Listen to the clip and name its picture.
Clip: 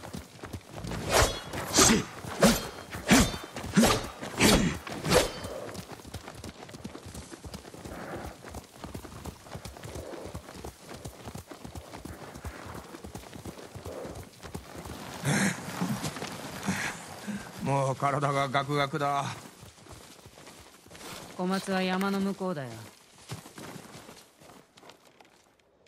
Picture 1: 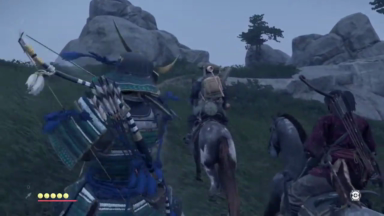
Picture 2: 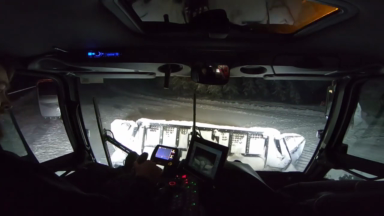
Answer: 1